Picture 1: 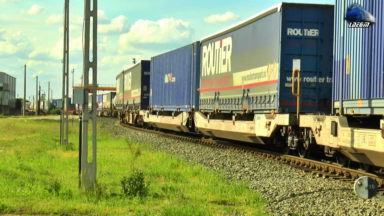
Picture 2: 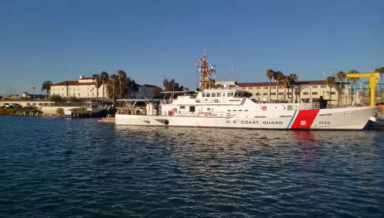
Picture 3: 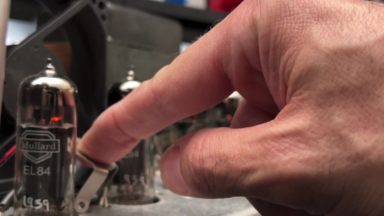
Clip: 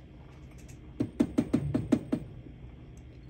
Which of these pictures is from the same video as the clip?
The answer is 3